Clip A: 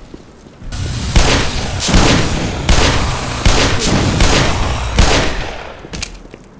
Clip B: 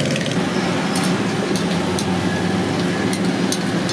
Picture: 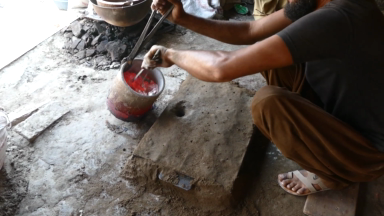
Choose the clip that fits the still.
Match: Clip B